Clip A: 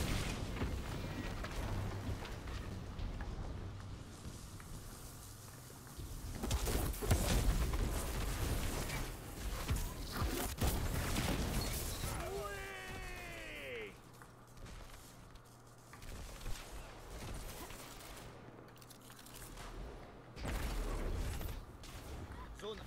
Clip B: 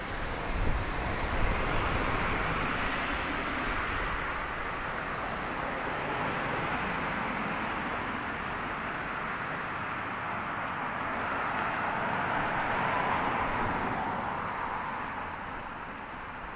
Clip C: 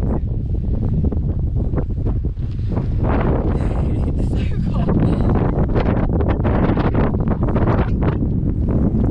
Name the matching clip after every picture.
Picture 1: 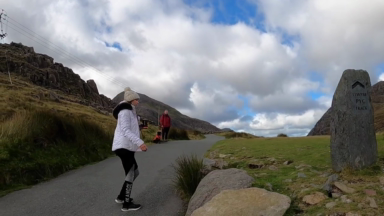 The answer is C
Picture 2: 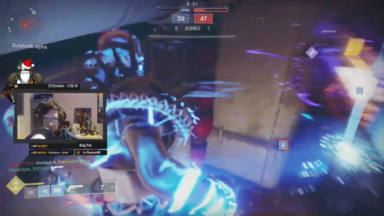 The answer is A